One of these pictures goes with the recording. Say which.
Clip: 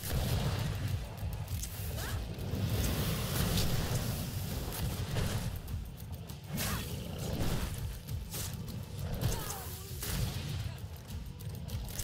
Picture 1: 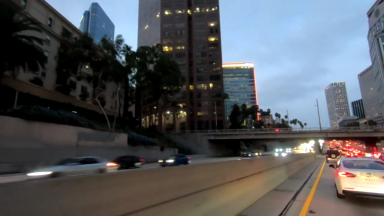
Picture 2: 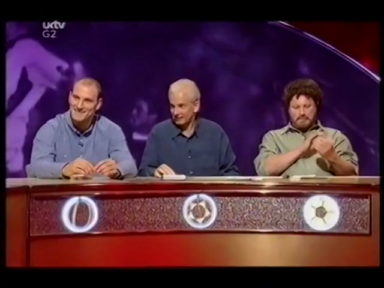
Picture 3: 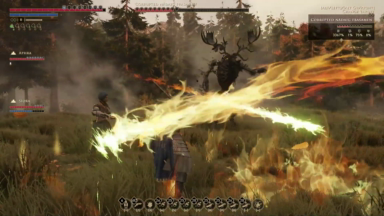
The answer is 3